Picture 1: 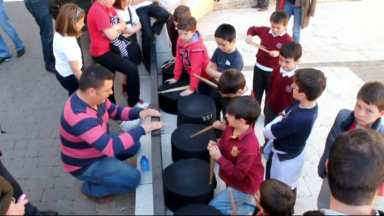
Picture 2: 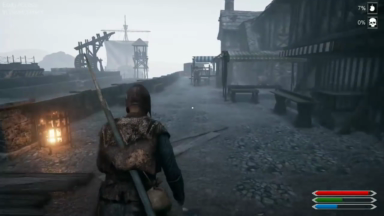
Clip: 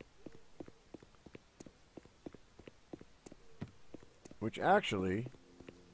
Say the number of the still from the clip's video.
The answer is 2